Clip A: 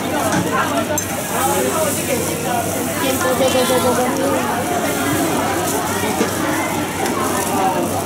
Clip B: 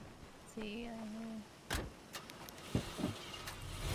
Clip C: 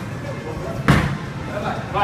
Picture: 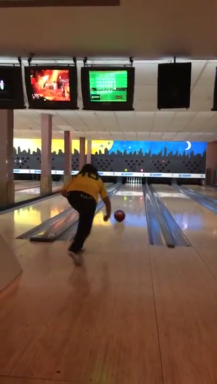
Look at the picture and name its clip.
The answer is C